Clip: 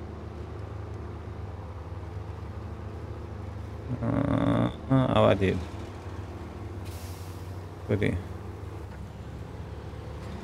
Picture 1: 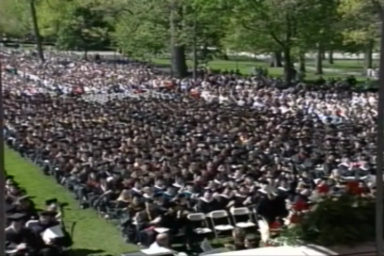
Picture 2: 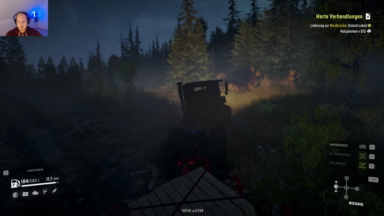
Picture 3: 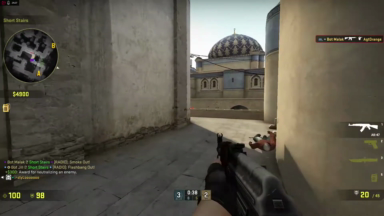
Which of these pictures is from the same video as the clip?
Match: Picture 2